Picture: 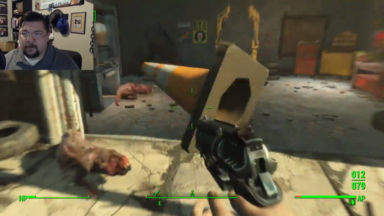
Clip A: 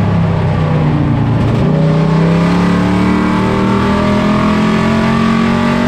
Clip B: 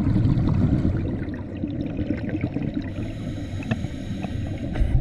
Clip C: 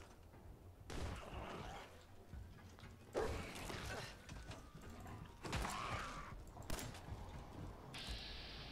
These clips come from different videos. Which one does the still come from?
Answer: C